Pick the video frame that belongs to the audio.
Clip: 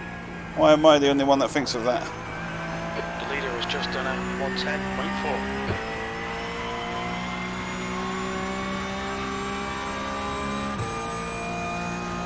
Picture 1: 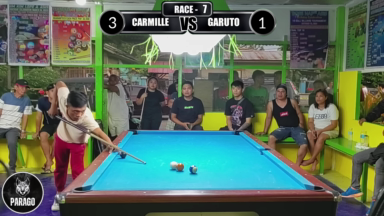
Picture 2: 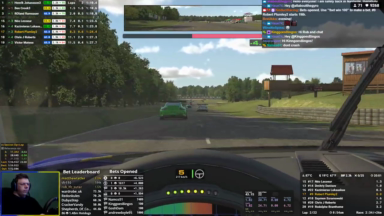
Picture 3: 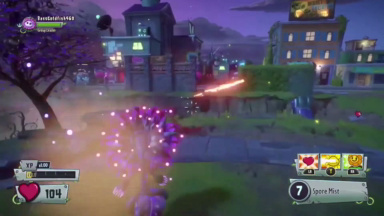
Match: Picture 2